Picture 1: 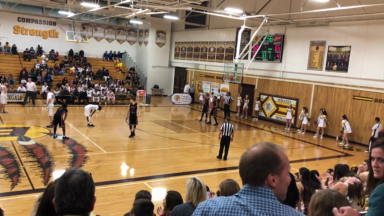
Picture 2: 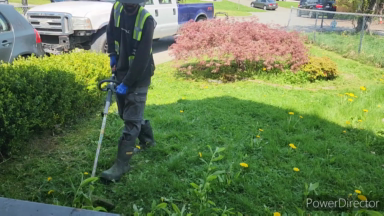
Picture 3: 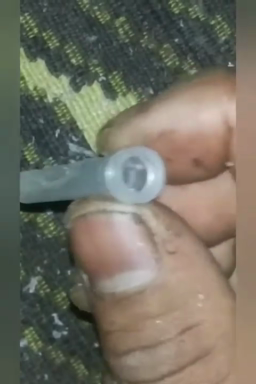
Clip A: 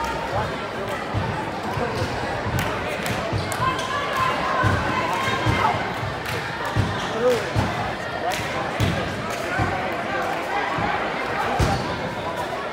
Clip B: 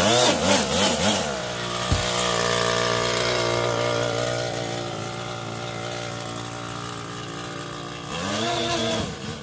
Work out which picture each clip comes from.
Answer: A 1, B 2